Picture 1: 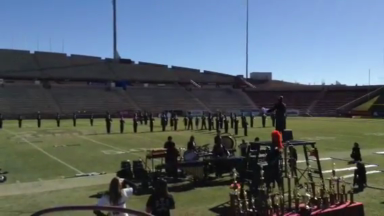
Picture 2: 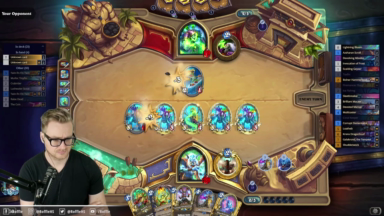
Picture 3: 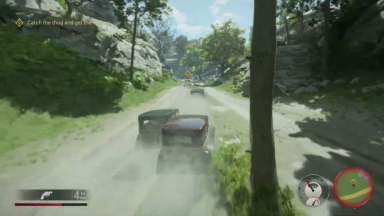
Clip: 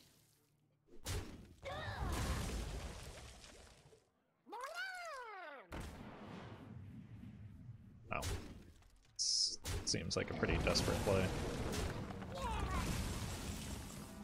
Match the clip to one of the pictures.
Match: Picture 2